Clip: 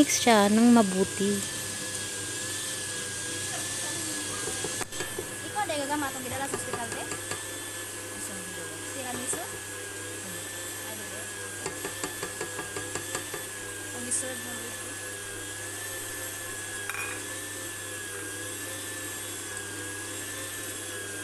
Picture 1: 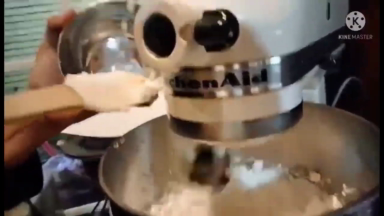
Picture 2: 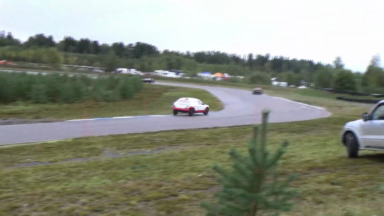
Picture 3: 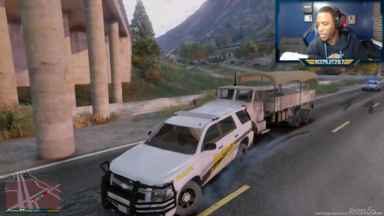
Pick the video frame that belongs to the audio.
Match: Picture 1